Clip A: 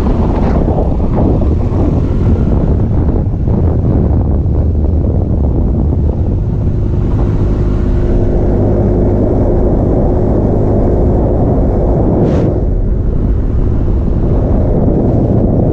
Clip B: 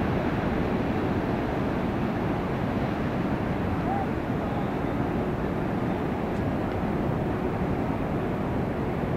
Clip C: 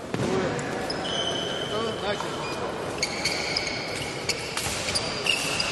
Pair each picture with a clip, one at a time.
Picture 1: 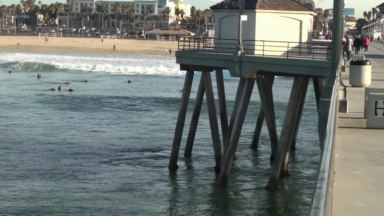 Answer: B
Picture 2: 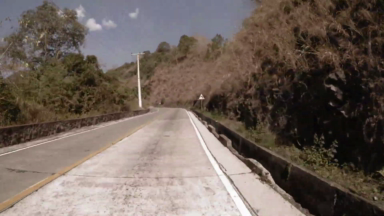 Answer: A